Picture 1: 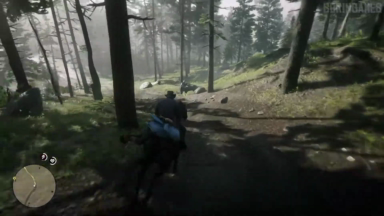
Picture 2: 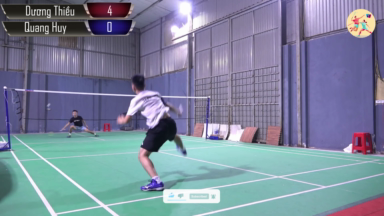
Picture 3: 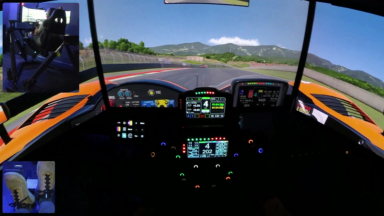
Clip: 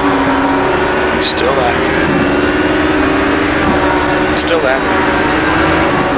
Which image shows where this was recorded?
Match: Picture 3